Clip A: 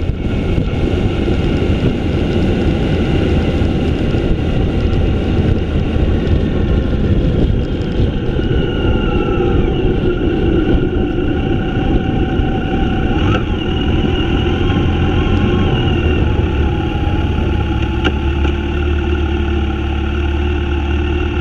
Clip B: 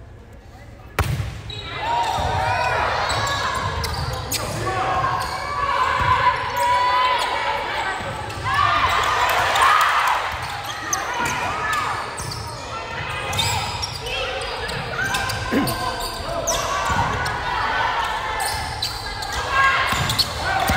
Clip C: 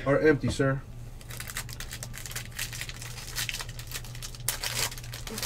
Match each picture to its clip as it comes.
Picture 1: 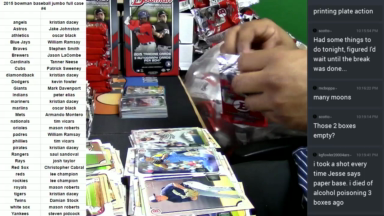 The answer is C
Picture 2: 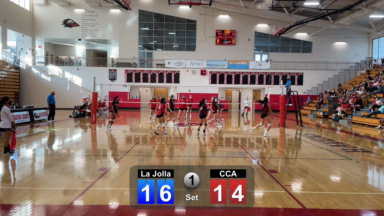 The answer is B